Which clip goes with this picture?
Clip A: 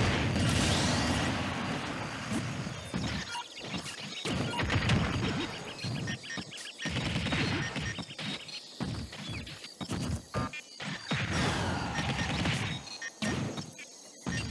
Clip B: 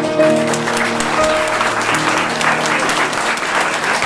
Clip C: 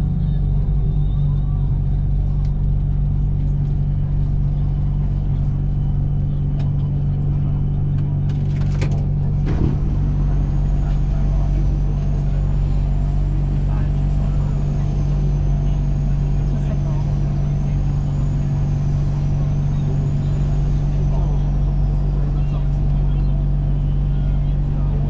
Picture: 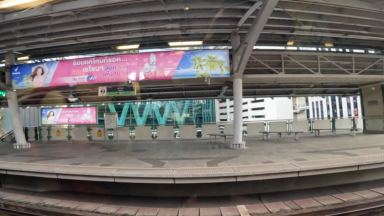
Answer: C